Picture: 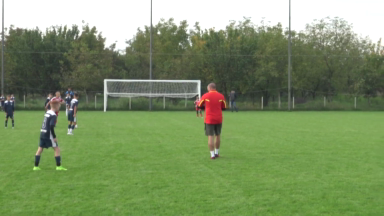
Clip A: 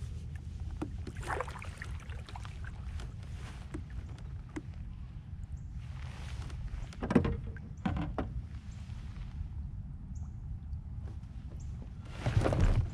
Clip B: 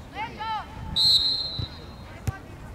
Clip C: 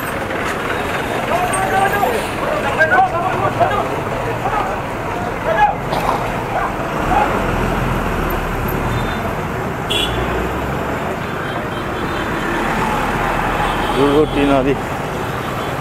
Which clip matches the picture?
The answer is B